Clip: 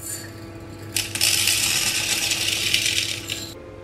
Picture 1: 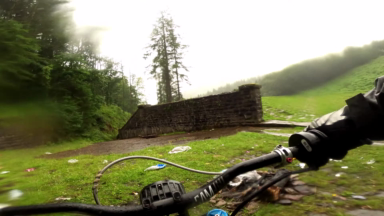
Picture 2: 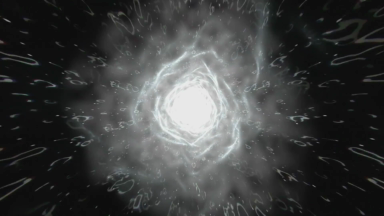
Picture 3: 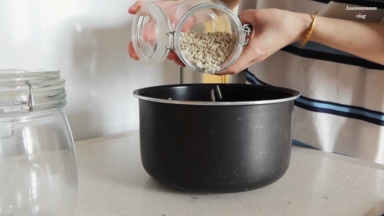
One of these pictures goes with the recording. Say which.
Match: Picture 3